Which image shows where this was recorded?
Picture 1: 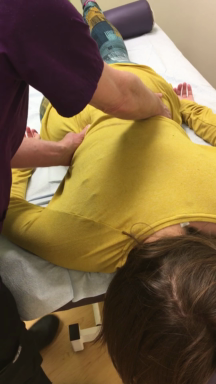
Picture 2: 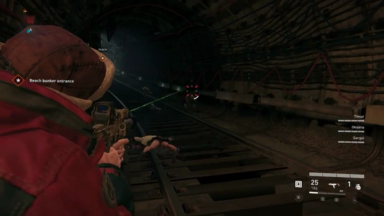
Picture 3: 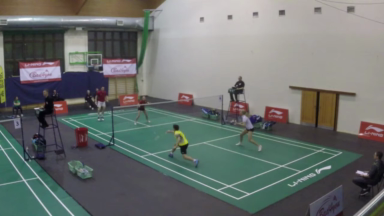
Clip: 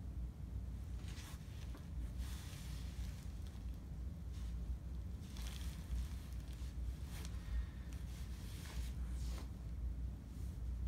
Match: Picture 1